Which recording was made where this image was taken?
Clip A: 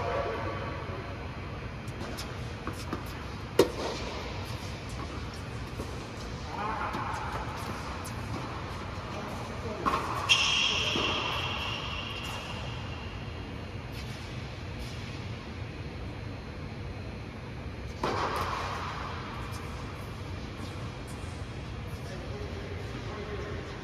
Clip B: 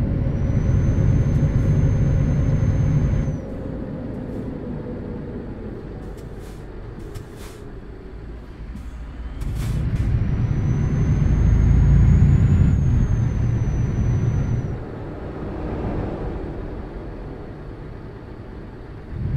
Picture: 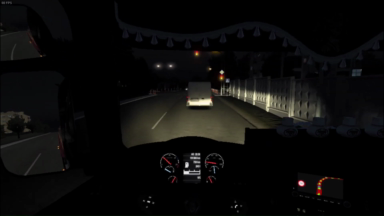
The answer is B